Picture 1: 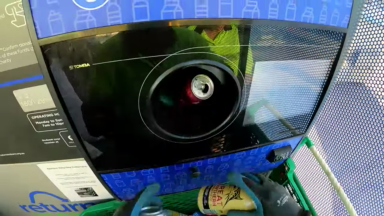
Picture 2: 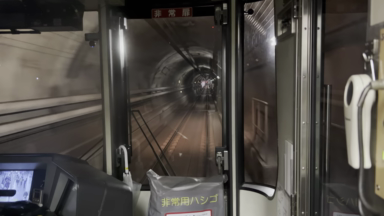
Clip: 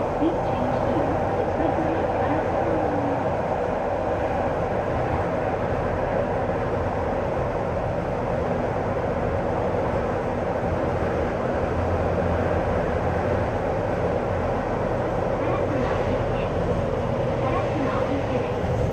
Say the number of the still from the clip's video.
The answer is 2